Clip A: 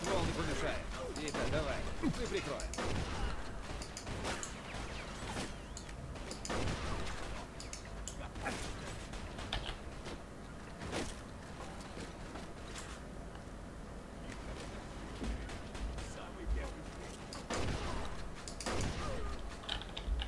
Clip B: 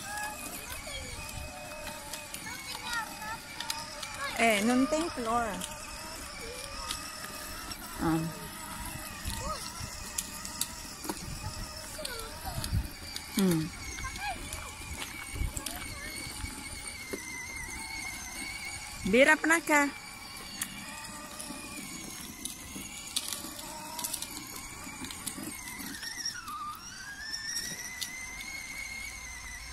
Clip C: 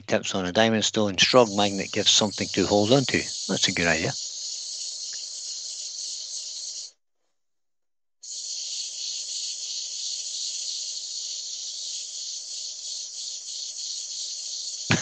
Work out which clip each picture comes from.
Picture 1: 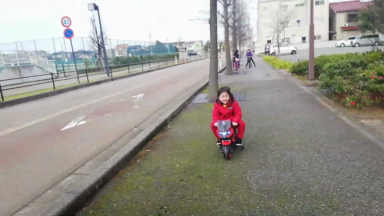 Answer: B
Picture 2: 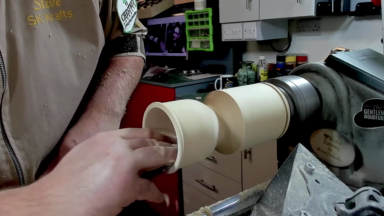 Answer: C